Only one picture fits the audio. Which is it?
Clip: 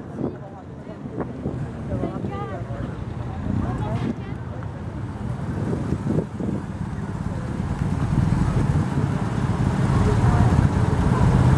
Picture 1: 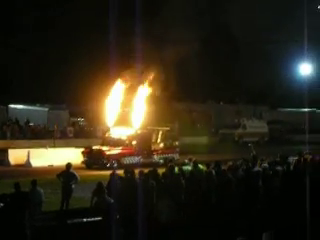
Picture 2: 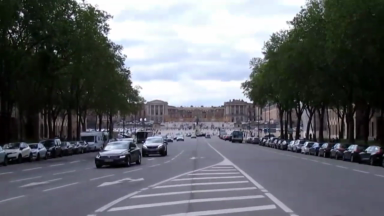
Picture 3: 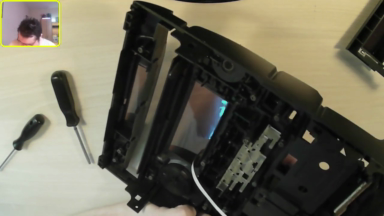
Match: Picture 2